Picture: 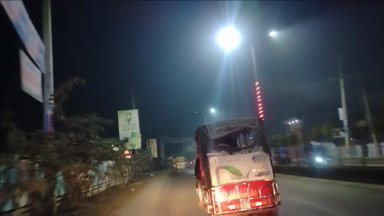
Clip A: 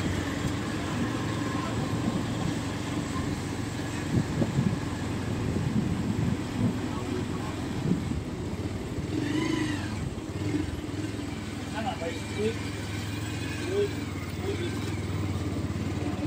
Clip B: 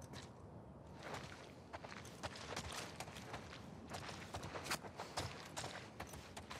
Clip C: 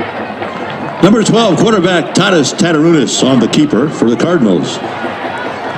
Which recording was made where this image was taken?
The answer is A